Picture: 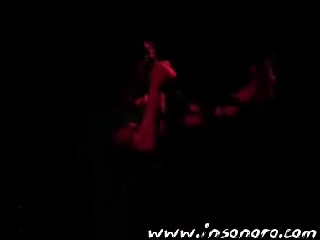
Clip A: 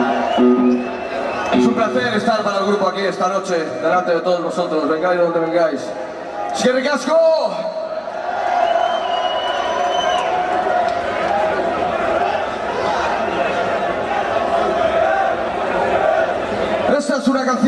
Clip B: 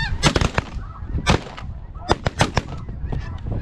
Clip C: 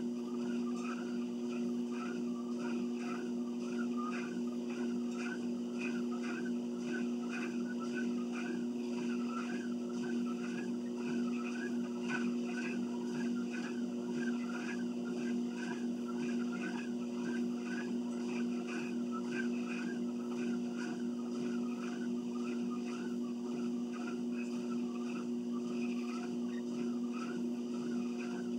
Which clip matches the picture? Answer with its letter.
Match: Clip A